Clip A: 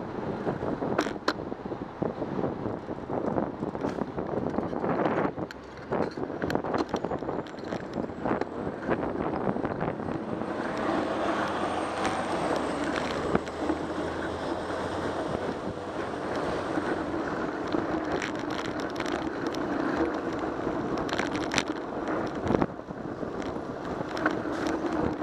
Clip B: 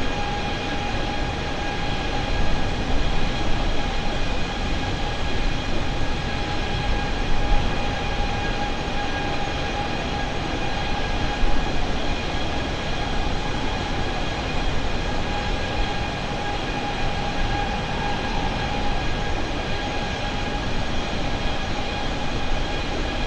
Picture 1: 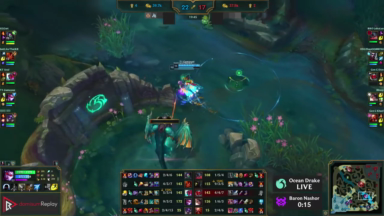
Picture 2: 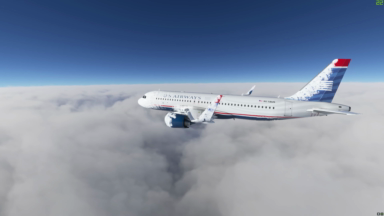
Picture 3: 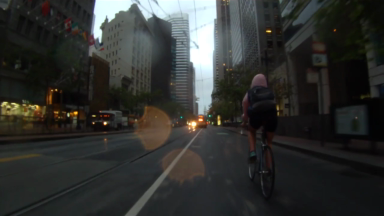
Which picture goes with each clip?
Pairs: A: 3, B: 2